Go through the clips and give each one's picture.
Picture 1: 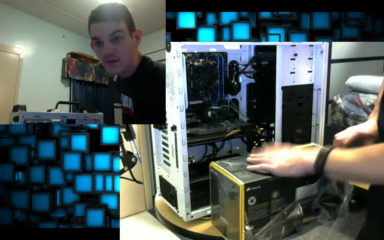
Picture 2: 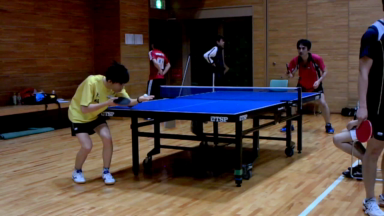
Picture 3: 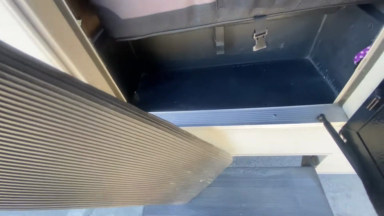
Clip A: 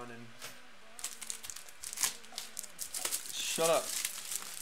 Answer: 1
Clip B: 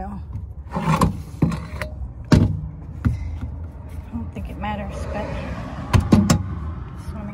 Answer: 3